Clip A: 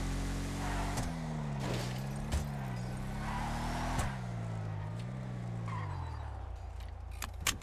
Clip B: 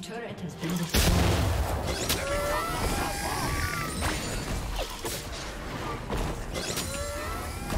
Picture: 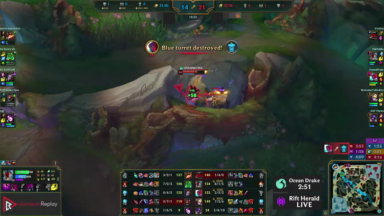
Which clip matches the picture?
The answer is B